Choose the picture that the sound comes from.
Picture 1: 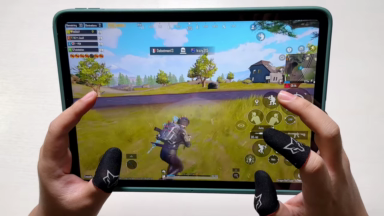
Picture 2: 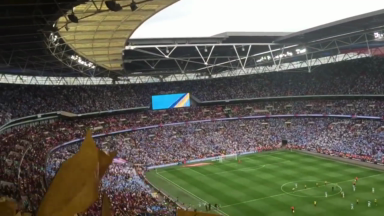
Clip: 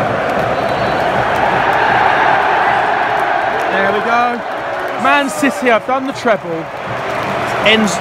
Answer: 2